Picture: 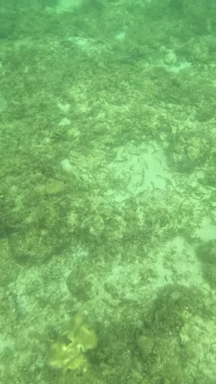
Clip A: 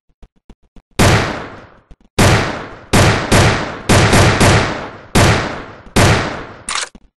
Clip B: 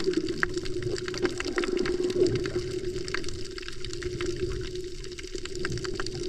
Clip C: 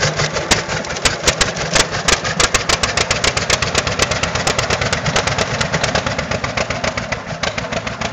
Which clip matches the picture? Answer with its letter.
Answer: B